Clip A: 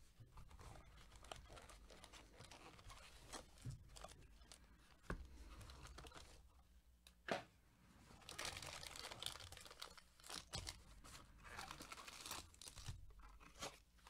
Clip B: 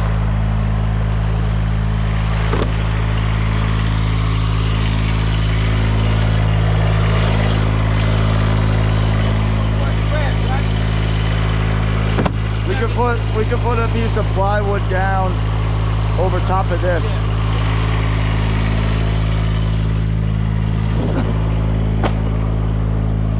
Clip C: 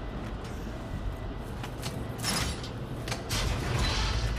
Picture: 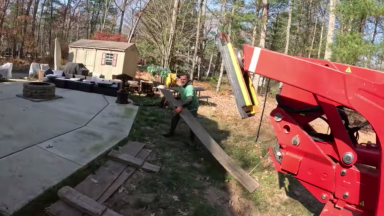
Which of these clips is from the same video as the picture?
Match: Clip B